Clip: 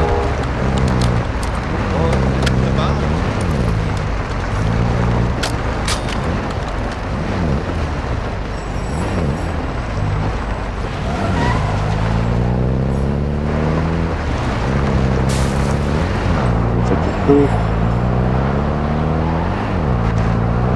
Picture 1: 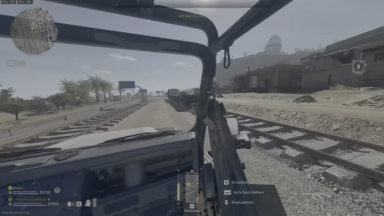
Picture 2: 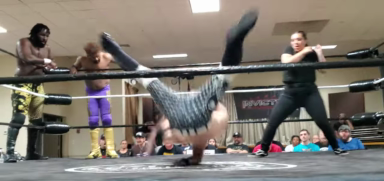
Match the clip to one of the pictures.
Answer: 1